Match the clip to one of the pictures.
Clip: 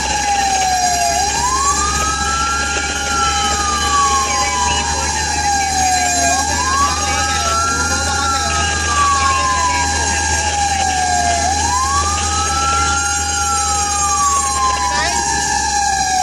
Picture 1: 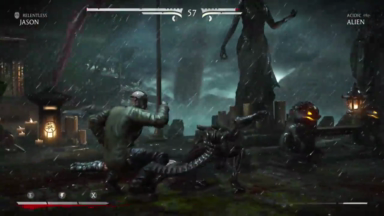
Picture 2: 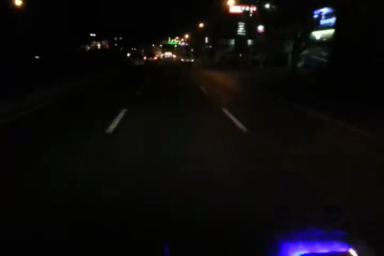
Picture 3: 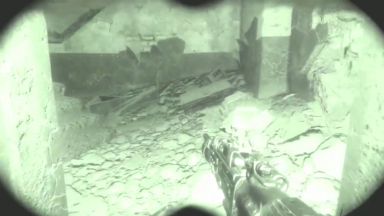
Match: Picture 2